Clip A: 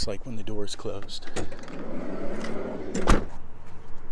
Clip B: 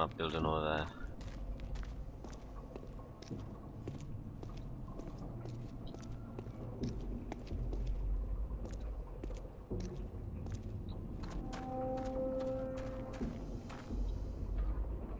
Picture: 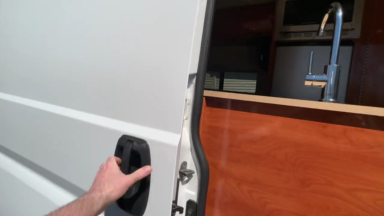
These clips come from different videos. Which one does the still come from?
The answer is A